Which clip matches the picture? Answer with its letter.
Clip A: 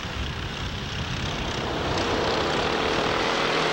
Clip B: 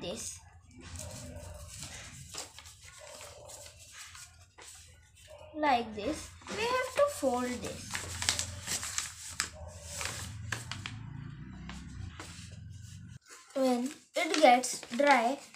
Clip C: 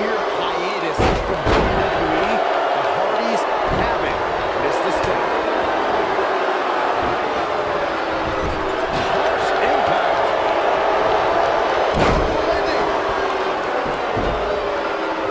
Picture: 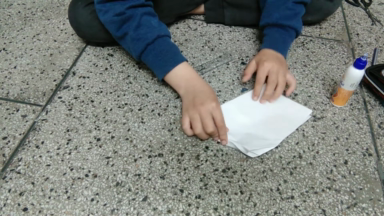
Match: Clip B